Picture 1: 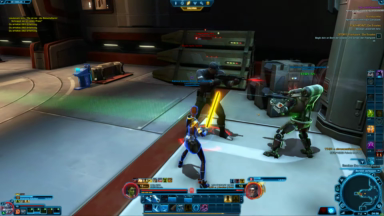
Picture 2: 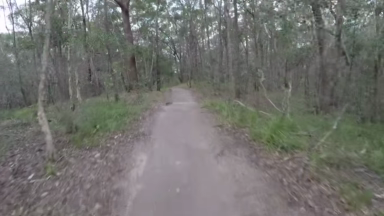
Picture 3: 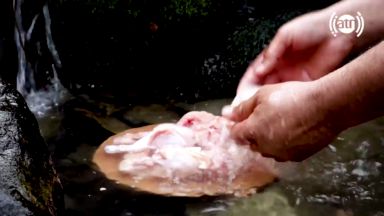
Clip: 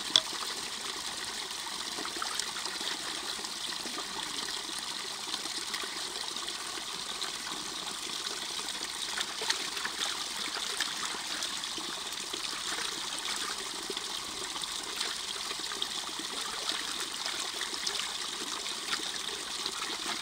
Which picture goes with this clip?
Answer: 3